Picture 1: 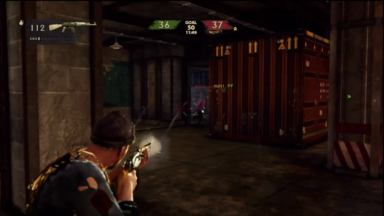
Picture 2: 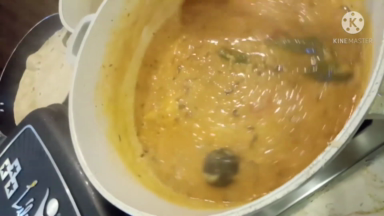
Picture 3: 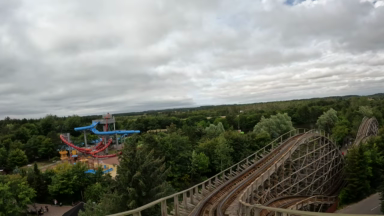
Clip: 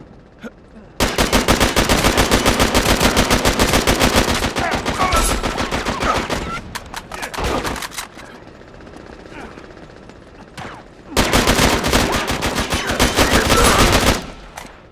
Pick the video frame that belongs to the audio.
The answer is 1